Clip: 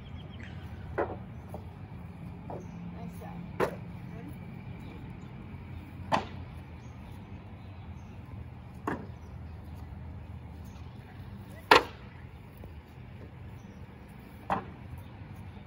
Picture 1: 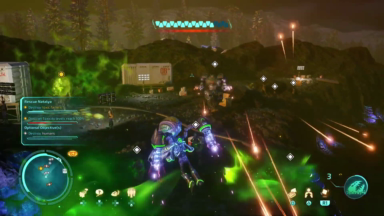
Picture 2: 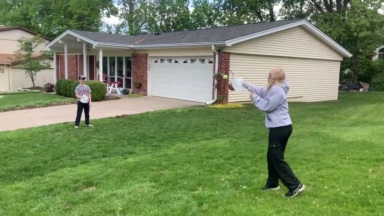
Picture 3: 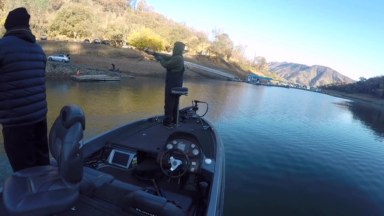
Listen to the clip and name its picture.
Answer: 2